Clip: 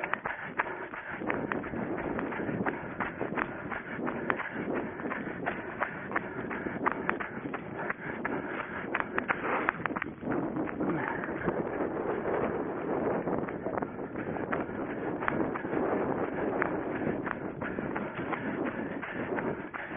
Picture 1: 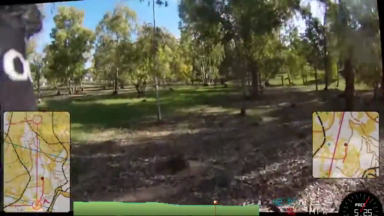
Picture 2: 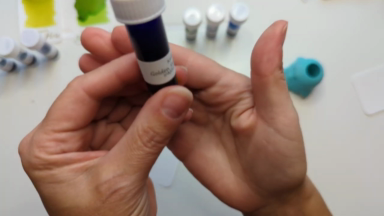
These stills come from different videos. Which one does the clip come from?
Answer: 1